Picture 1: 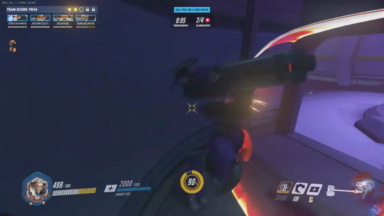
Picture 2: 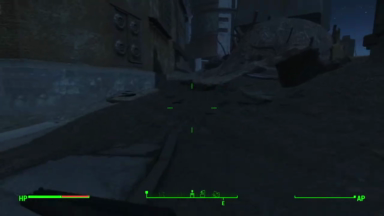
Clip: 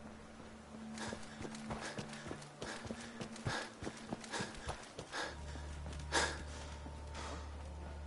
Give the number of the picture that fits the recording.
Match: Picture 2